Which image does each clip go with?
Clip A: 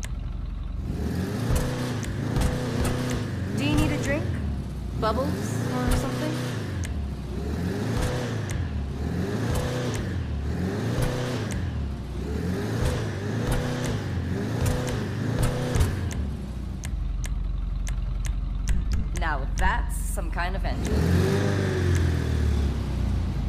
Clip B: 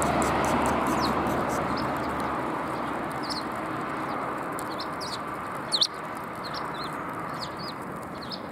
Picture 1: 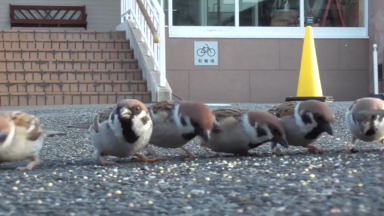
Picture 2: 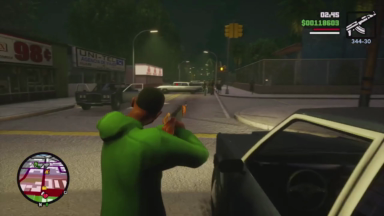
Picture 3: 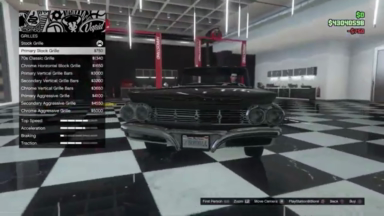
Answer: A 3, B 1